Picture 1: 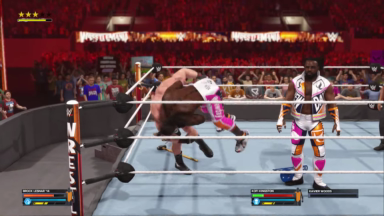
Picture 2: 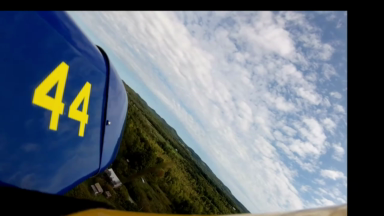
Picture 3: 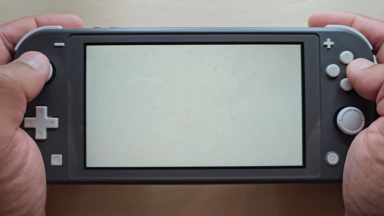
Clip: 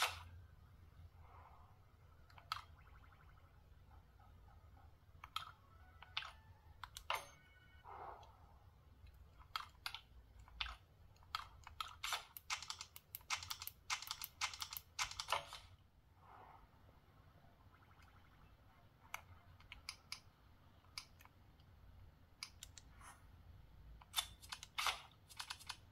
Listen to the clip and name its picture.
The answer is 3